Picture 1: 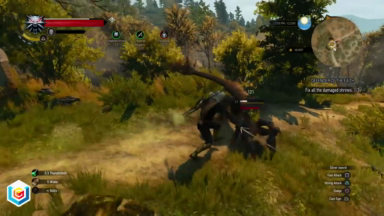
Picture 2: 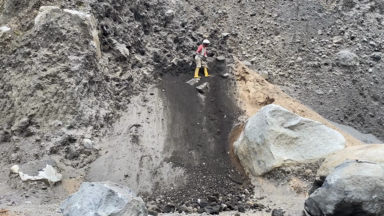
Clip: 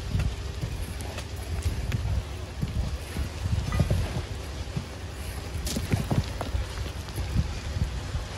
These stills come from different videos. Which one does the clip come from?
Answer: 2